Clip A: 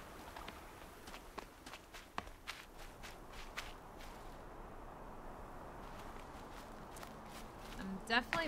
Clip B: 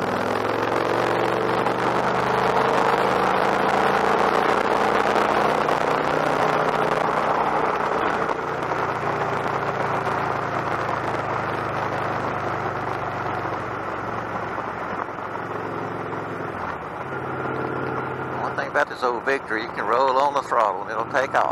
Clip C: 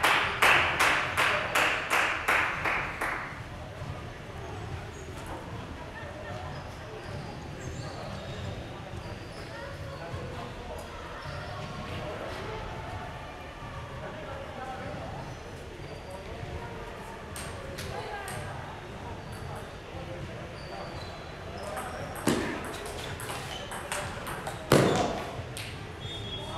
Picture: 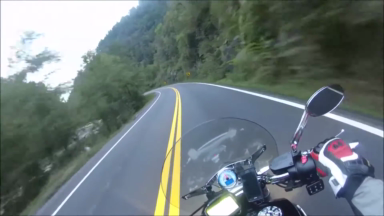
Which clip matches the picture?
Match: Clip B